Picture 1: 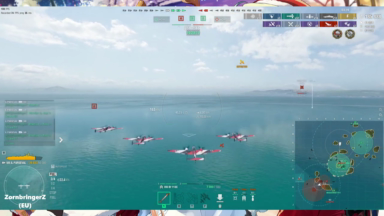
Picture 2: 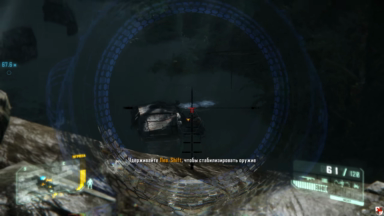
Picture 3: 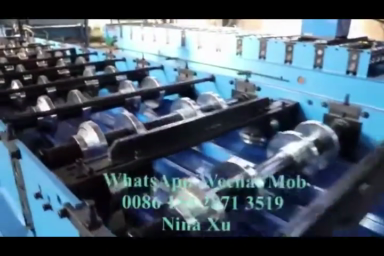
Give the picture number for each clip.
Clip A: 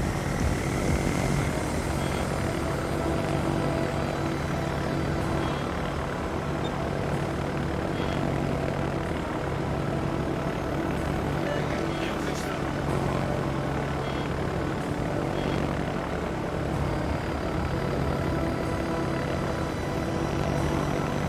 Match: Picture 1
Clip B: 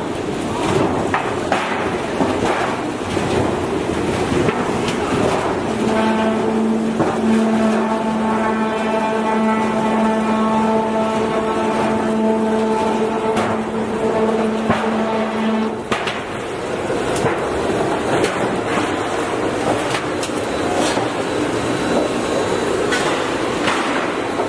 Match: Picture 3